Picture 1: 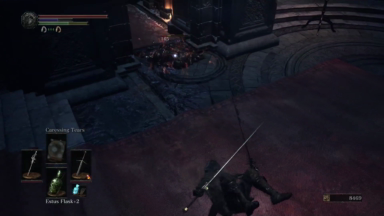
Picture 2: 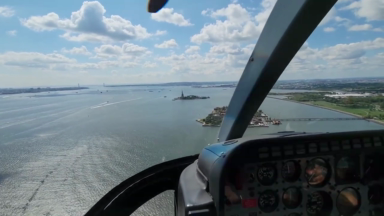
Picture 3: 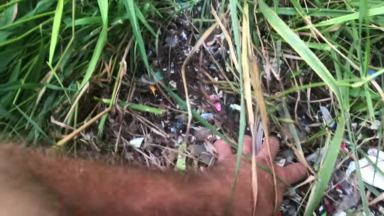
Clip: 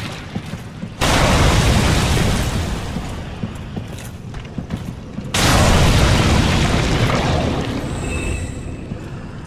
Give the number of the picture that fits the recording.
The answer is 1